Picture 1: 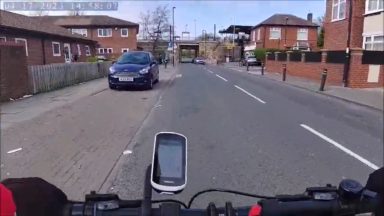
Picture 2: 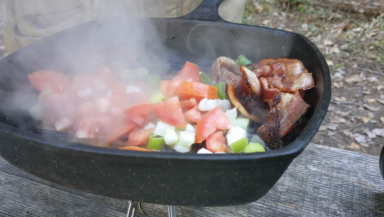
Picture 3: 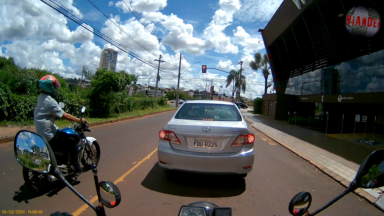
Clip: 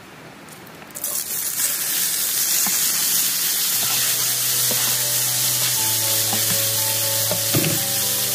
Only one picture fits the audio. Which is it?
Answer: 2